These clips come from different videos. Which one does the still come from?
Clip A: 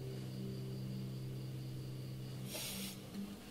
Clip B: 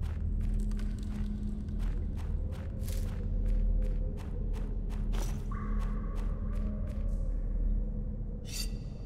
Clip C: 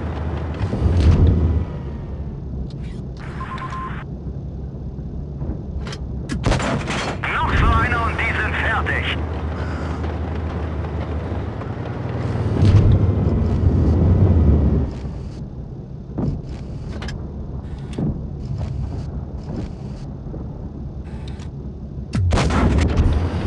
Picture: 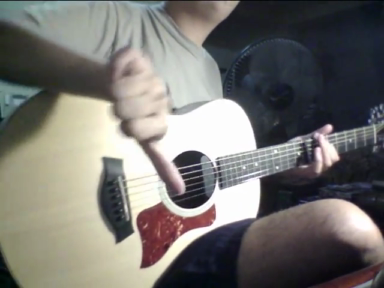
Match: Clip A